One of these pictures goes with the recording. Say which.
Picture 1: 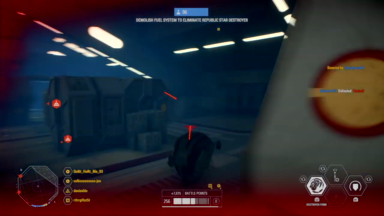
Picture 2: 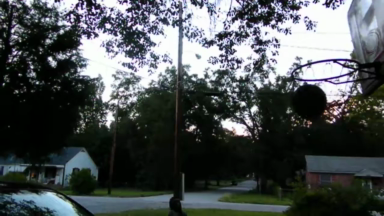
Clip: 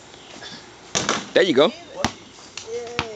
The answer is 2